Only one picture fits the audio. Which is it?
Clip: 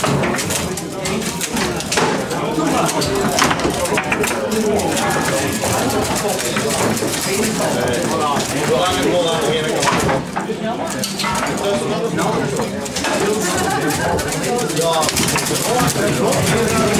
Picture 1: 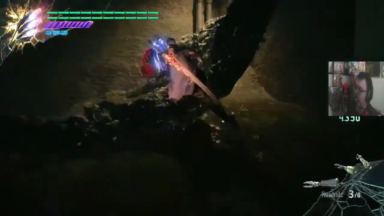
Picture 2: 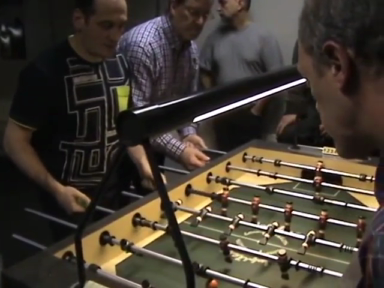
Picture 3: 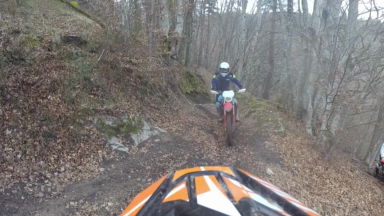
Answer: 2